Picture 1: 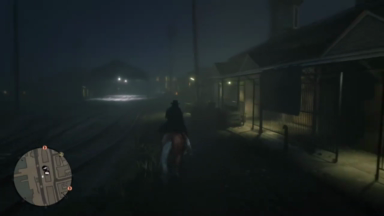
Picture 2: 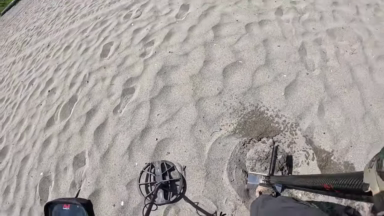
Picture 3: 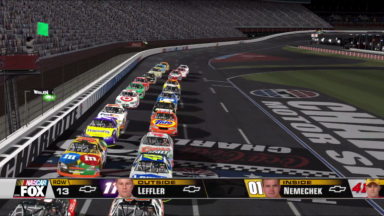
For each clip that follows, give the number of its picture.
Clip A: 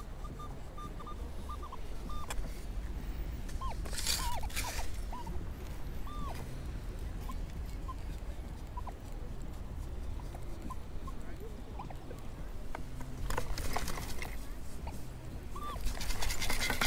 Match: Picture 2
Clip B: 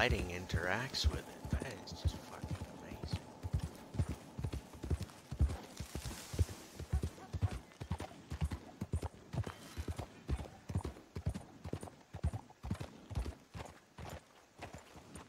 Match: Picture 1